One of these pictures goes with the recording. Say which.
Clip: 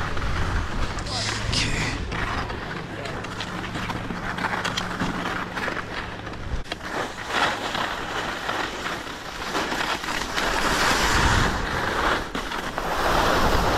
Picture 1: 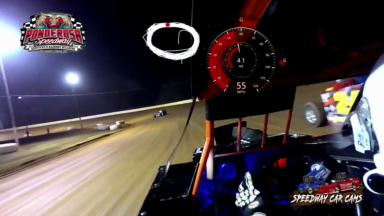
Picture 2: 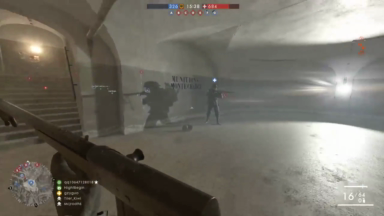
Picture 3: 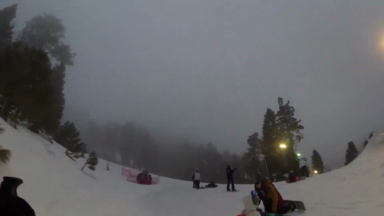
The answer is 3